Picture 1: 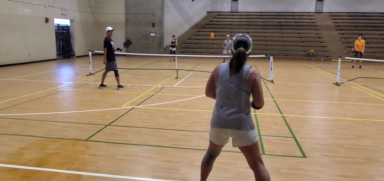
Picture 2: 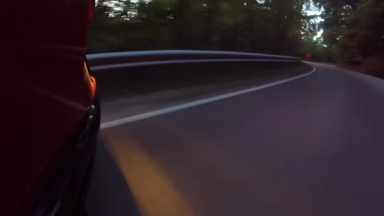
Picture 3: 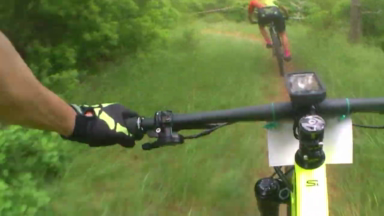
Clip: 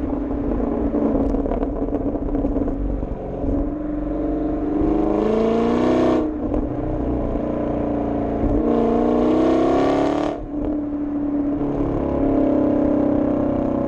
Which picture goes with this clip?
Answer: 2